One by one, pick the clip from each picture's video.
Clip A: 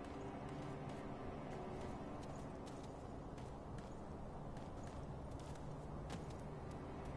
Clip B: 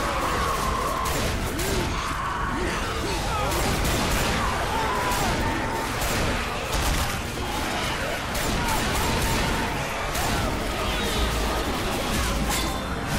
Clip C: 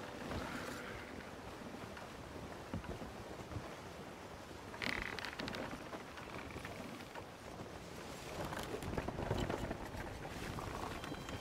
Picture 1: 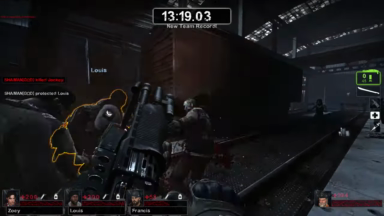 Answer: B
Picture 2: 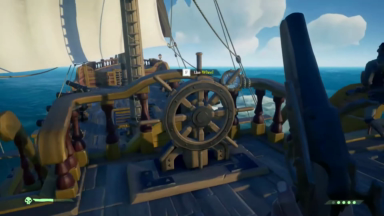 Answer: C